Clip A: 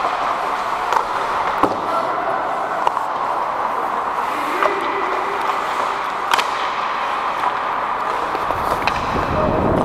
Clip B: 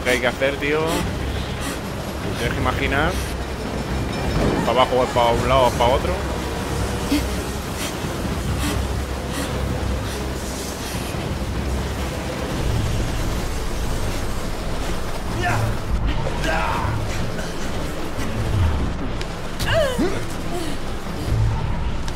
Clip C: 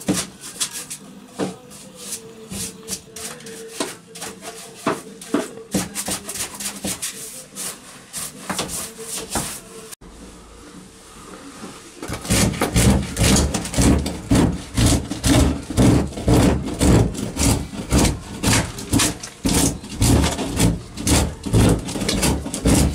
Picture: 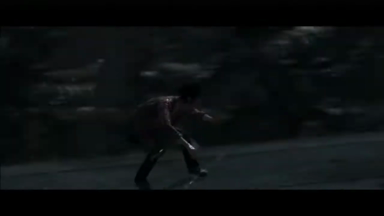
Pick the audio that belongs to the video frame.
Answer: B